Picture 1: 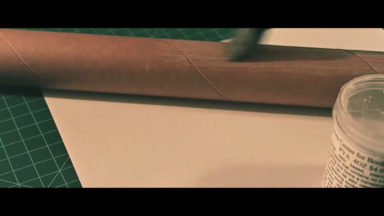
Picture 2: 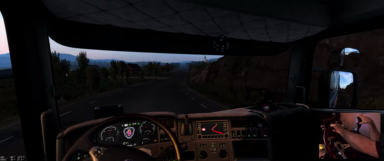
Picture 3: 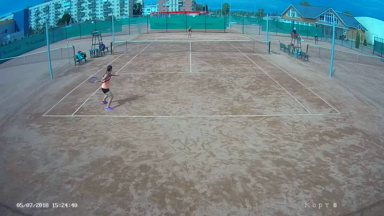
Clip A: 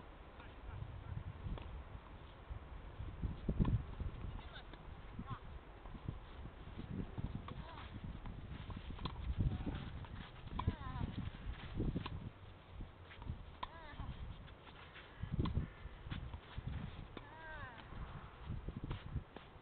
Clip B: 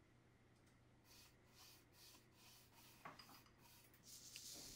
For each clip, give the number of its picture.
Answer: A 3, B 1